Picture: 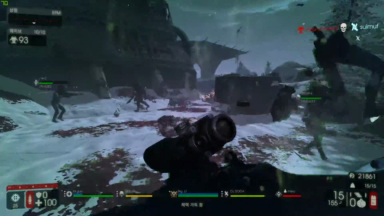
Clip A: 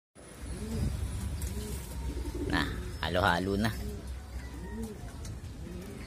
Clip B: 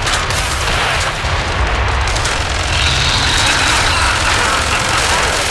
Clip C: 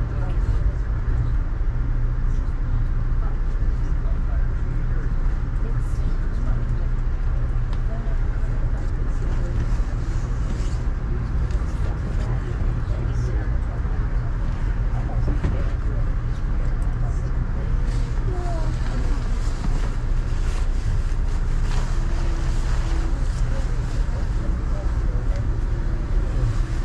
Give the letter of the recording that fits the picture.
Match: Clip B